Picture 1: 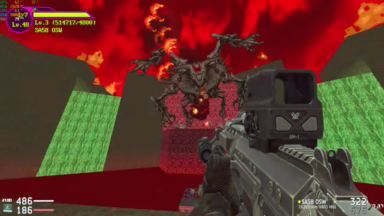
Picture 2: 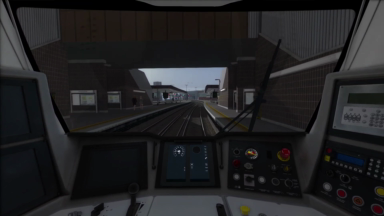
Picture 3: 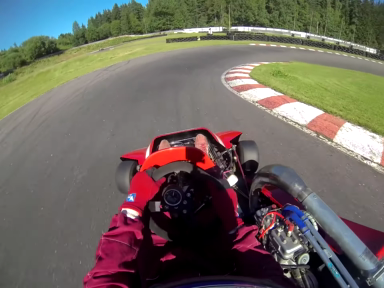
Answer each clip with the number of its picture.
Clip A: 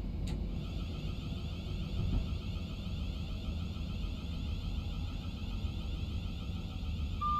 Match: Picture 2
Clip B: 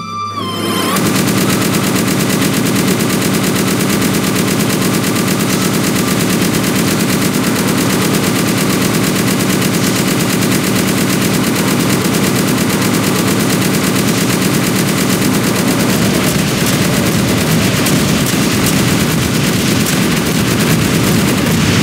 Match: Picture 1